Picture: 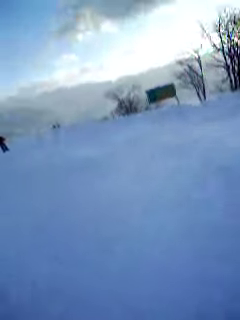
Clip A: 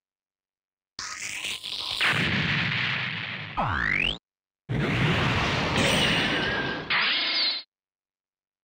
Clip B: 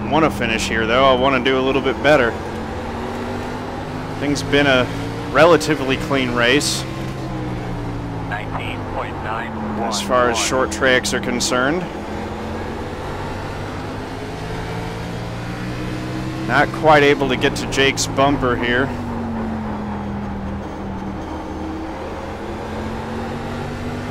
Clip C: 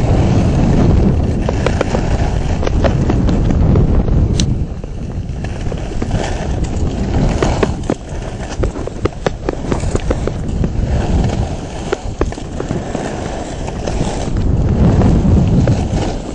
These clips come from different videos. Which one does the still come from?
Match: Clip C